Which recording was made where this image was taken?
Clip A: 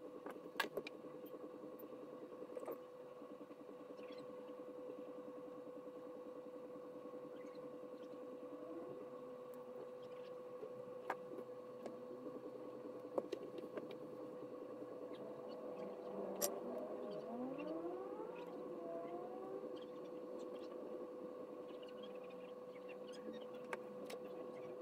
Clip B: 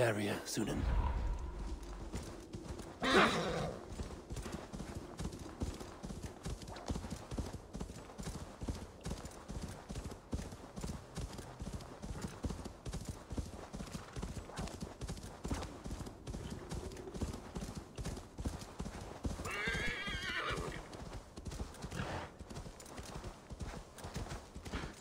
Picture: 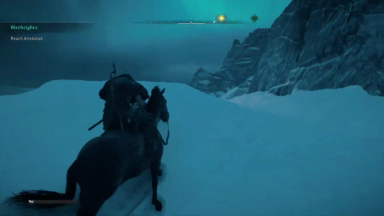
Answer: B